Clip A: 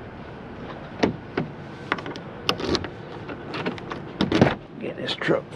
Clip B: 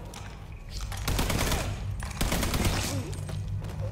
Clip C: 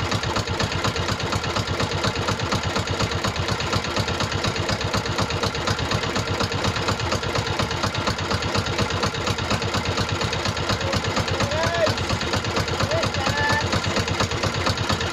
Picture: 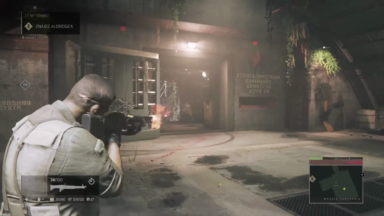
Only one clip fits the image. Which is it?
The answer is B